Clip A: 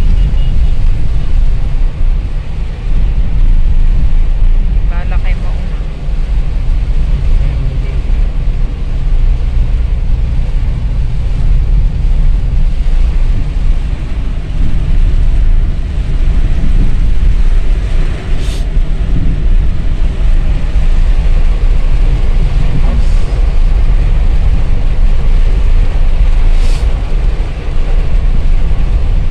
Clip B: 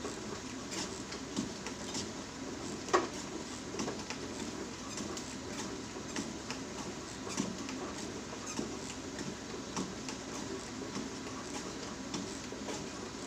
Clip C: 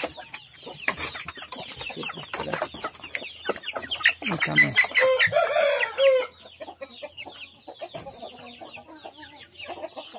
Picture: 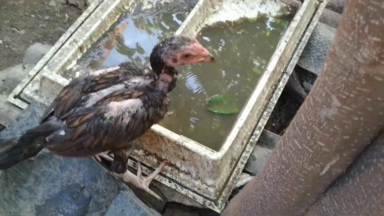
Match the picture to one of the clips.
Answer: C